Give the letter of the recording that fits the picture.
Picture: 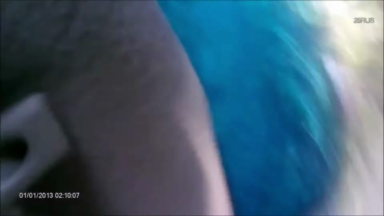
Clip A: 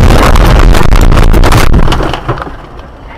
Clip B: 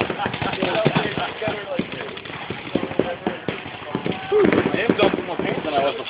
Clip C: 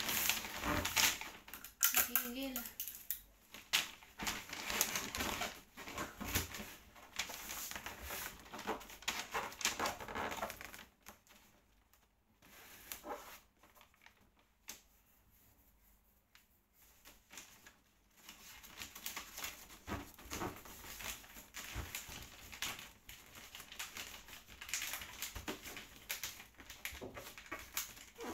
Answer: A